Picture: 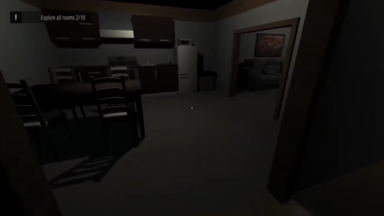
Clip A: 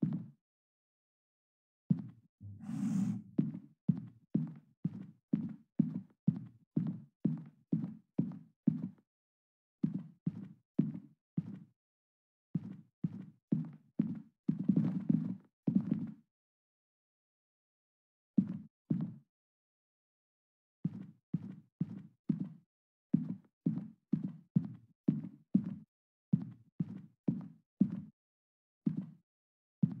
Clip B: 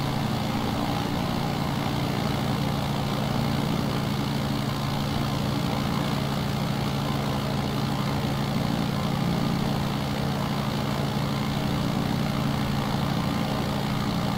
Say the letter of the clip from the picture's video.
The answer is A